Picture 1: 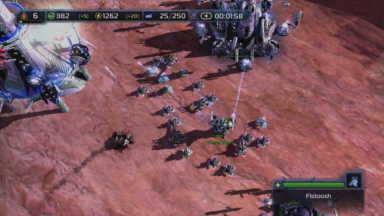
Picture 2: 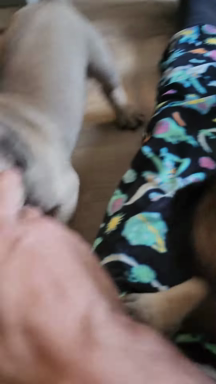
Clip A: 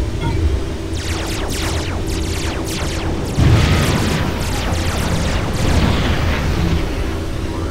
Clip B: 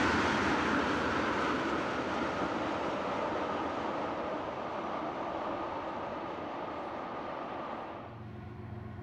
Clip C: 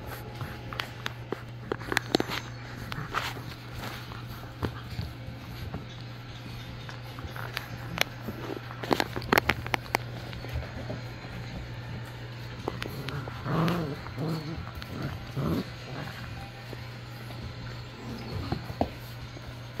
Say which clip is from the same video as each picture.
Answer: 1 A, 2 C